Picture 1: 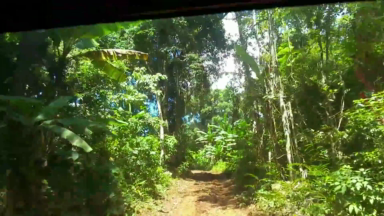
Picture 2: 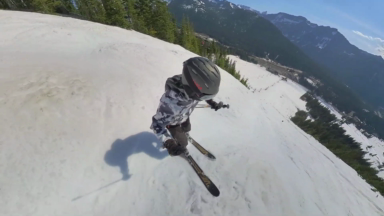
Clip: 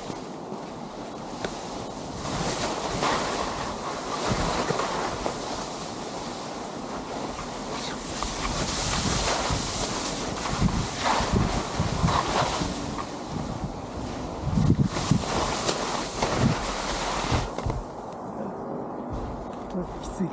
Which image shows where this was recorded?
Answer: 2